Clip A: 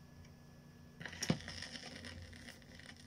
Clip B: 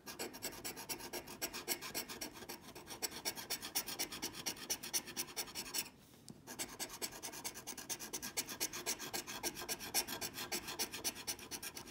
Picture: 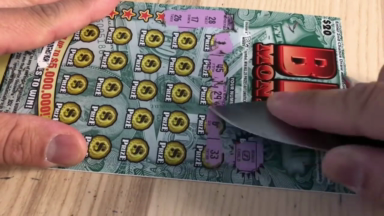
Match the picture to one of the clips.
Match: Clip B